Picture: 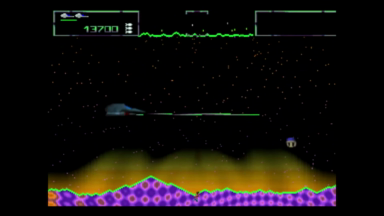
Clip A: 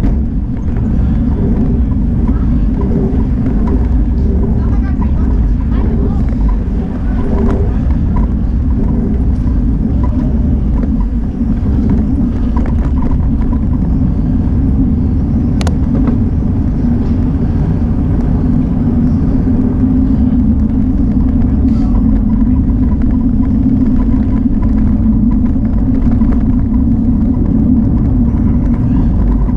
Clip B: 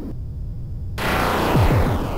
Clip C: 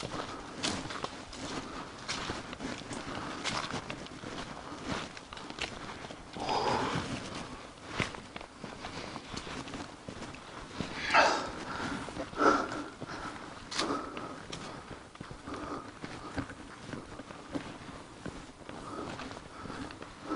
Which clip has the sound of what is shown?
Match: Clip B